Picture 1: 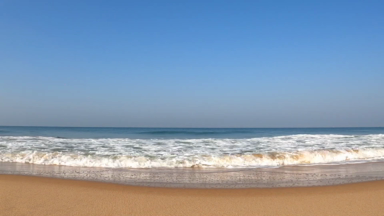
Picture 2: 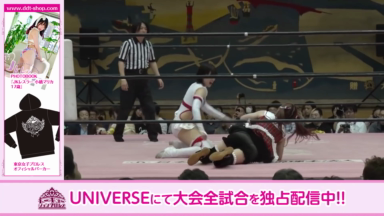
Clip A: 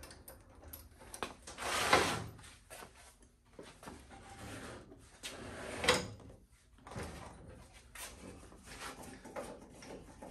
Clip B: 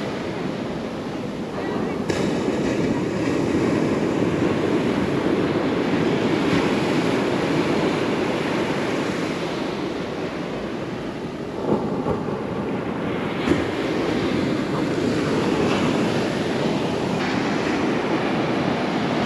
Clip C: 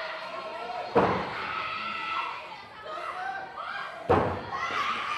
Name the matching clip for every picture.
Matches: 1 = B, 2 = C